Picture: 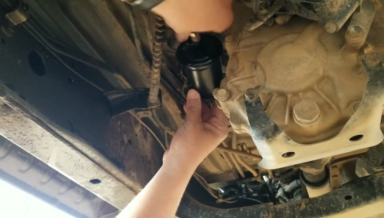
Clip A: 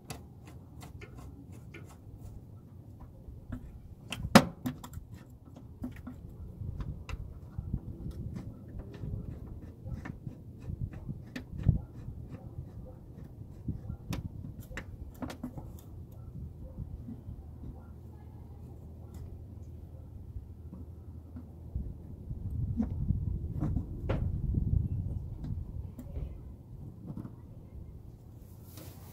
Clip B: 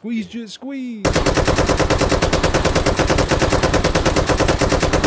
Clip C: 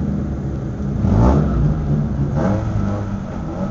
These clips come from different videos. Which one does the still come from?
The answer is A